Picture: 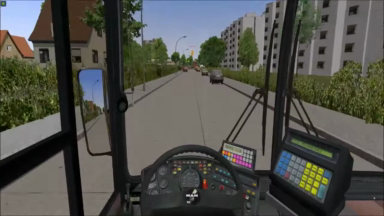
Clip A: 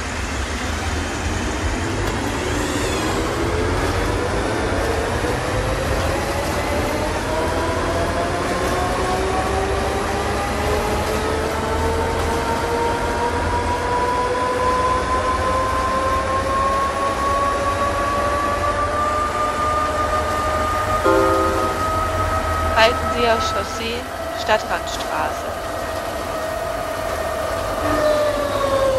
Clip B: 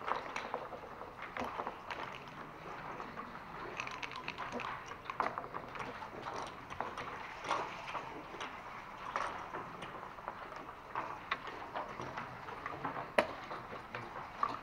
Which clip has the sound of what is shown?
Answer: A